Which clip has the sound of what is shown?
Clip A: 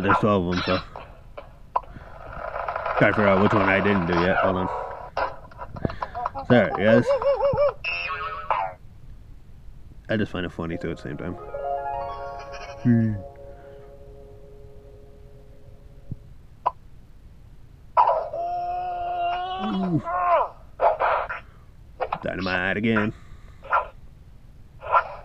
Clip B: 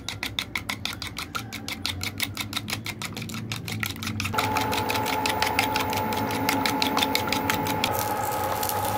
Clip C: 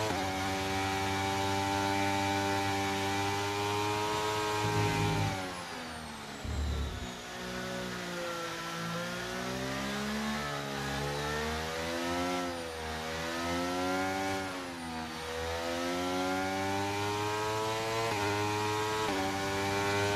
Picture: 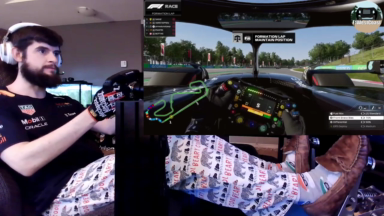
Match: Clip C